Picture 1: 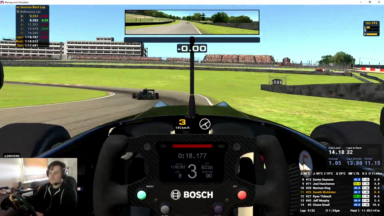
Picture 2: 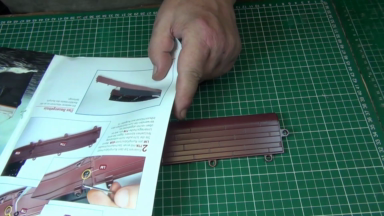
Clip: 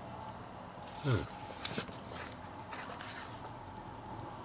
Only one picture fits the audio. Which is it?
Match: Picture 2